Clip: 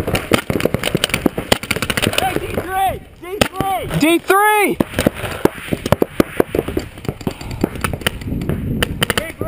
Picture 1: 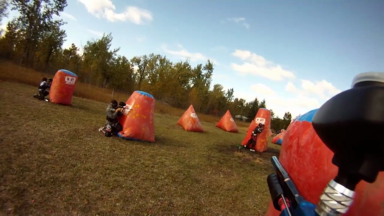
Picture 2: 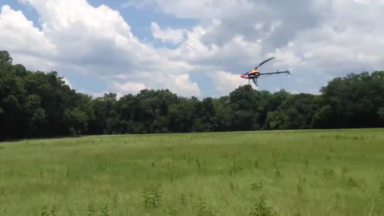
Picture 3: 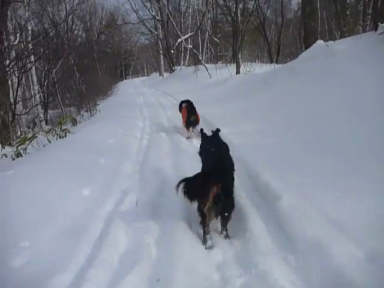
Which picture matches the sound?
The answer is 1